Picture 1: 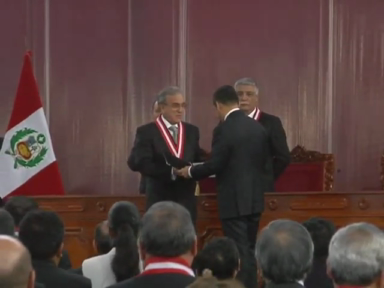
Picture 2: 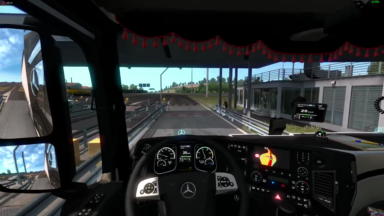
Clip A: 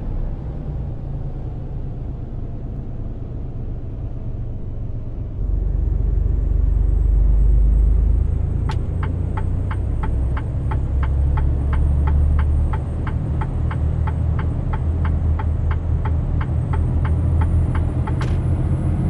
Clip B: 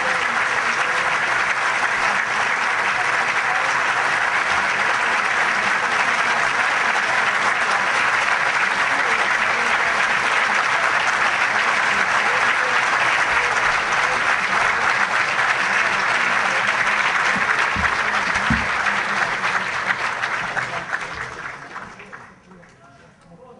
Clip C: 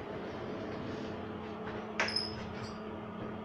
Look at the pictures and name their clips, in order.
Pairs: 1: B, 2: A